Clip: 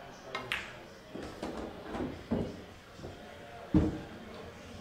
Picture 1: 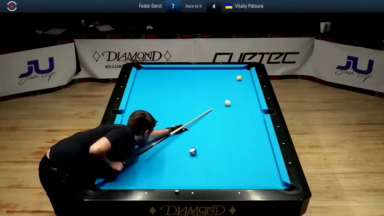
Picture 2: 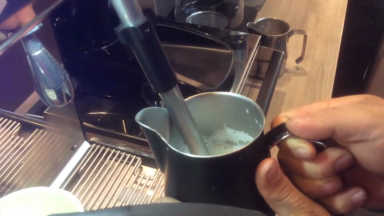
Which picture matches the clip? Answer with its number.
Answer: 1